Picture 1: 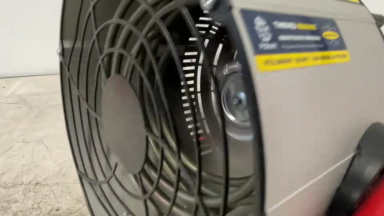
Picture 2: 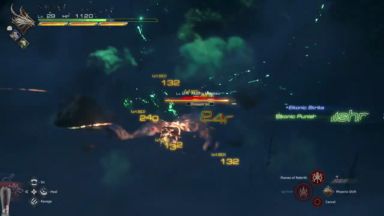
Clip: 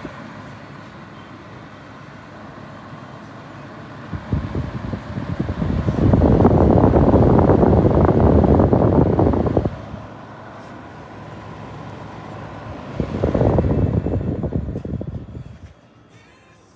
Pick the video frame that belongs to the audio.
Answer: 1